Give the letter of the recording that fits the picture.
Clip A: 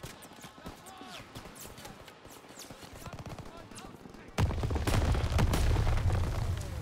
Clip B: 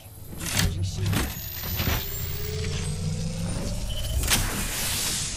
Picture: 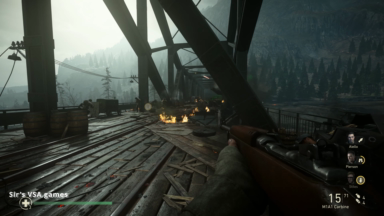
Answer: A